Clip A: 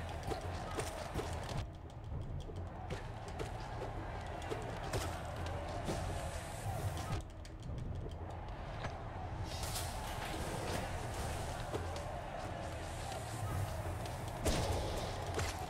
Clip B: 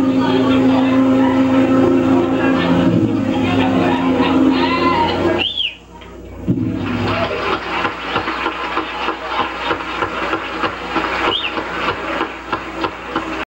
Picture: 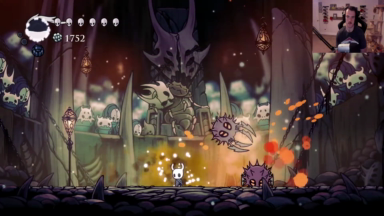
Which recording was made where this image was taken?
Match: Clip A